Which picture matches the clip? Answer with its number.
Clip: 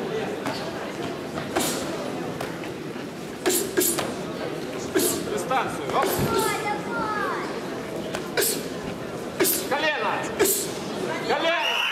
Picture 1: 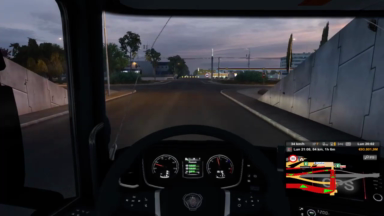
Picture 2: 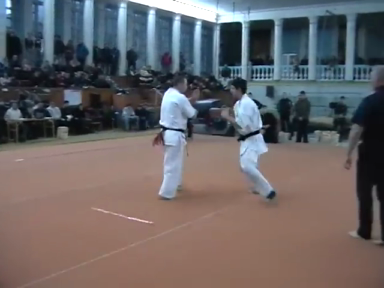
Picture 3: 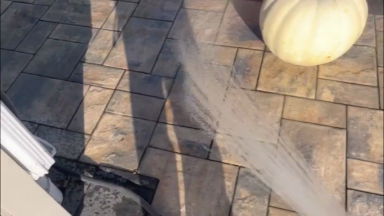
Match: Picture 2